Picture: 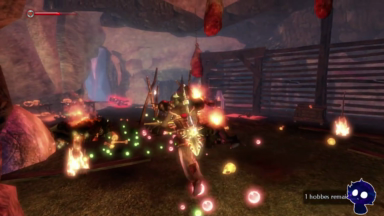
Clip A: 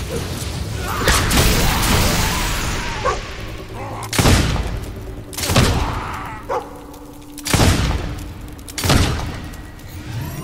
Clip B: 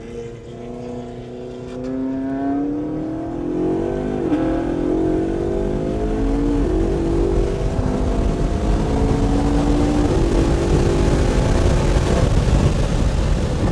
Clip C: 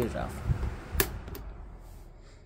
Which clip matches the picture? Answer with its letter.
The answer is A